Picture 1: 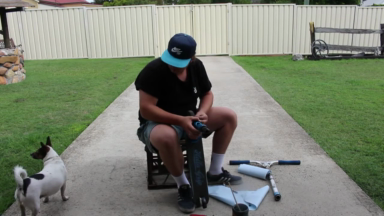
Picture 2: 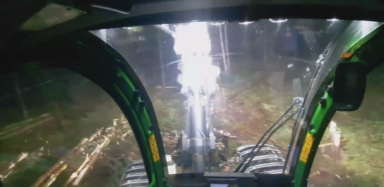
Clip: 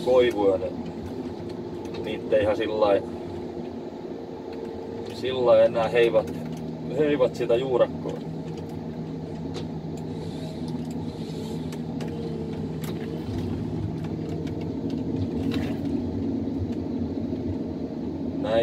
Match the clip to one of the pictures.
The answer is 2